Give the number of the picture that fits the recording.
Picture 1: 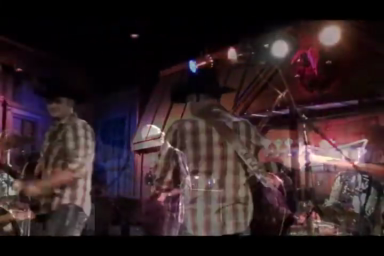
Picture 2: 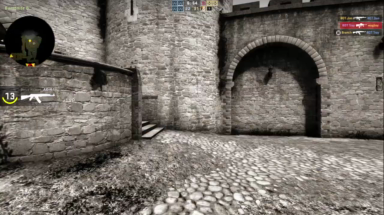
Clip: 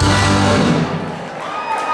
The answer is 1